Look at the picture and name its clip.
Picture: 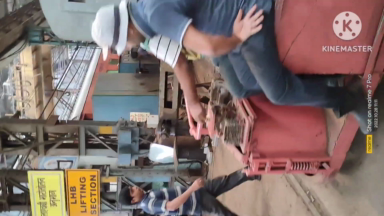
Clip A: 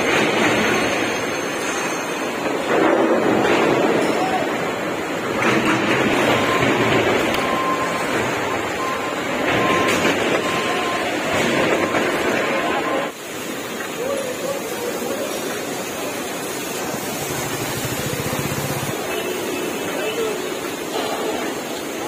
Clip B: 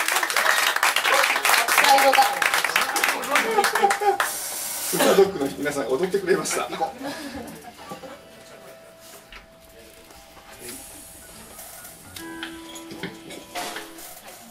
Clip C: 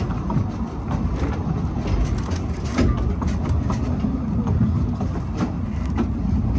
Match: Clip A